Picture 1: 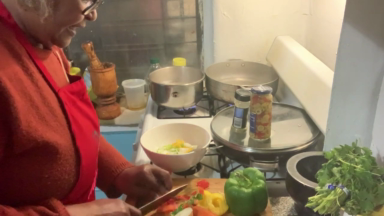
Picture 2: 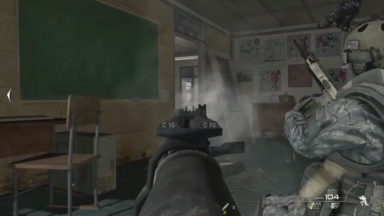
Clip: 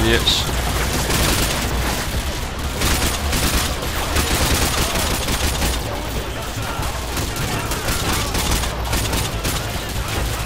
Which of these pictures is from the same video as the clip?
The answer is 2